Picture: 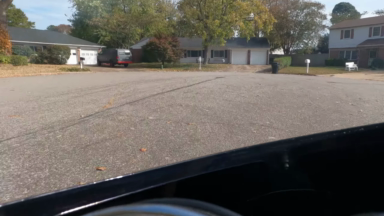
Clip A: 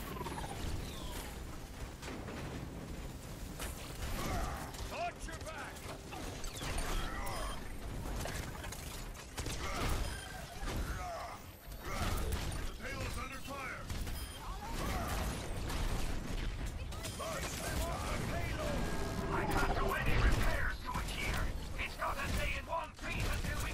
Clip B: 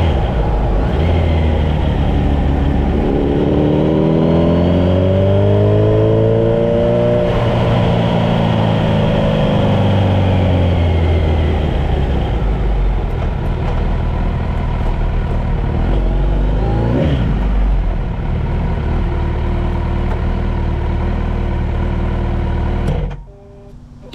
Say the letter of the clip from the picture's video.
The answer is B